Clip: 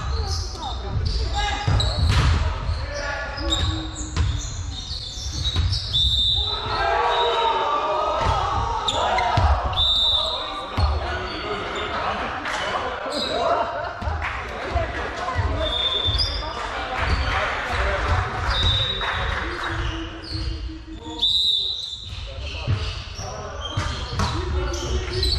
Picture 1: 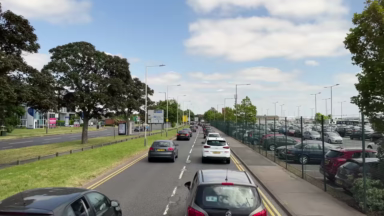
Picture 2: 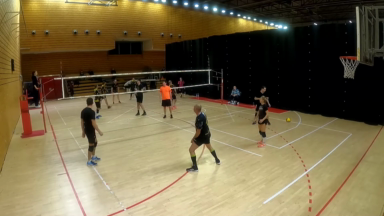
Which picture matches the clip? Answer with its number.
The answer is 2